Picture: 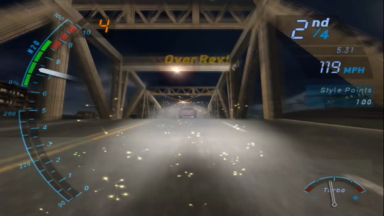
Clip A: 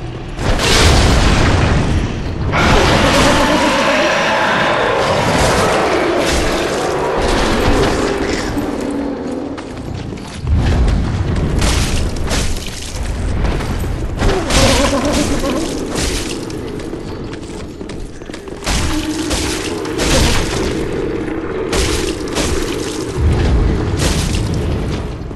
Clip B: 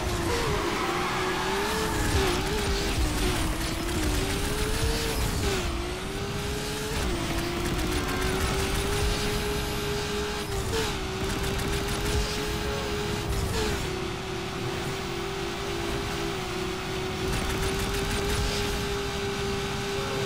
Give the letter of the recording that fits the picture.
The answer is B